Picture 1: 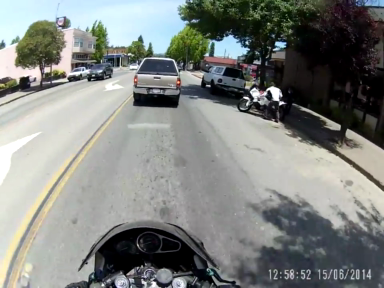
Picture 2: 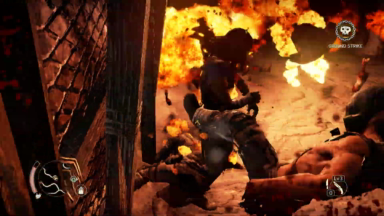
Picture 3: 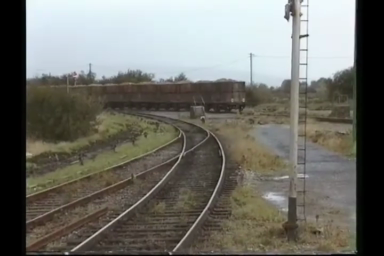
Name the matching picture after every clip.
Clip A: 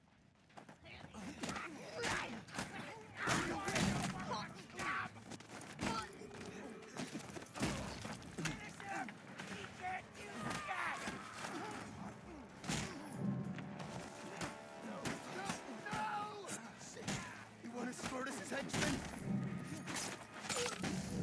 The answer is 2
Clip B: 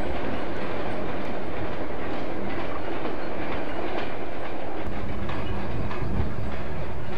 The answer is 3